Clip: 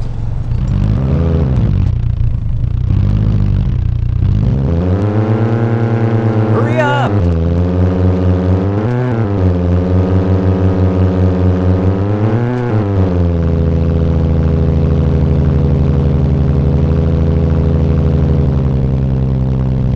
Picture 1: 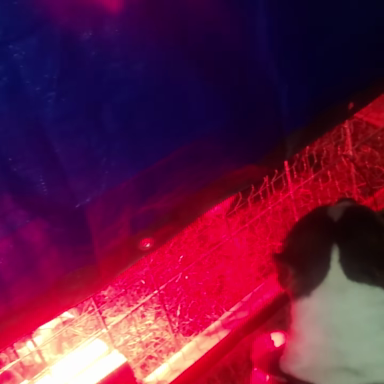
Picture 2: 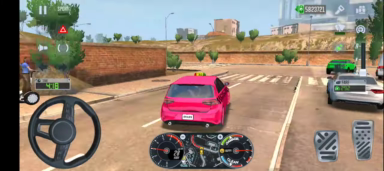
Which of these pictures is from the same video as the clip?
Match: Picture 2